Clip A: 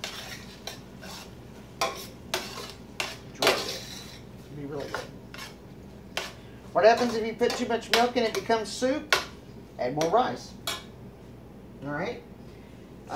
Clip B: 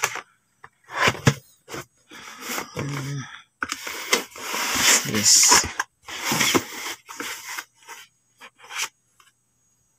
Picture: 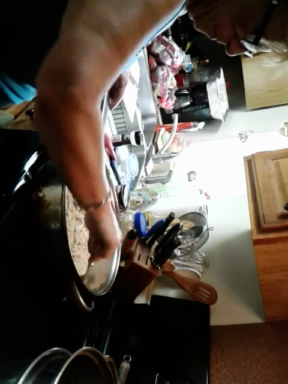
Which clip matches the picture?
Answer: A